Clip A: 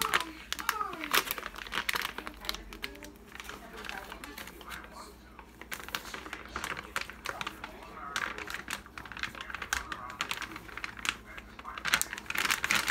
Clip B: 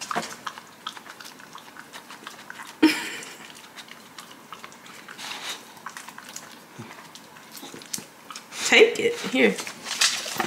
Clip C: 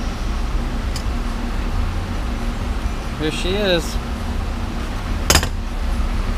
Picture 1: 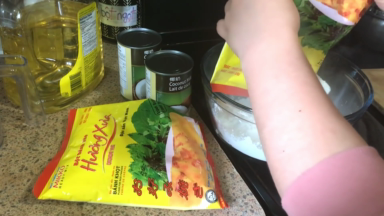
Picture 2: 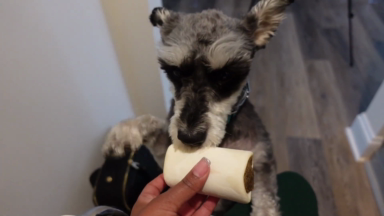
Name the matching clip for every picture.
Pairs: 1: A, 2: B